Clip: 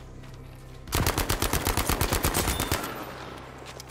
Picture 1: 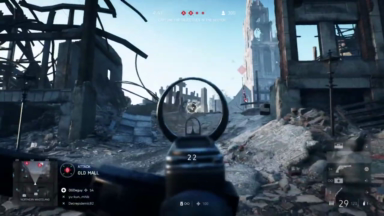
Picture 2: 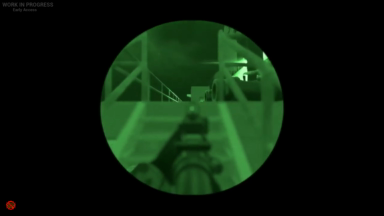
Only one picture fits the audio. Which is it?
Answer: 1